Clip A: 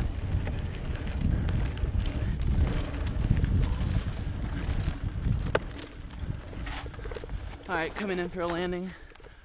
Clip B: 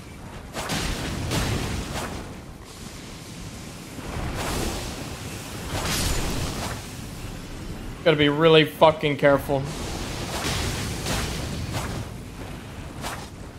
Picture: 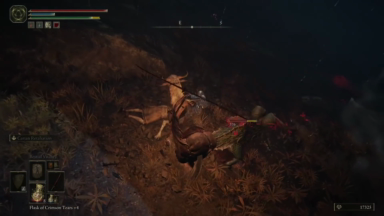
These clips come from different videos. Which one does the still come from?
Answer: B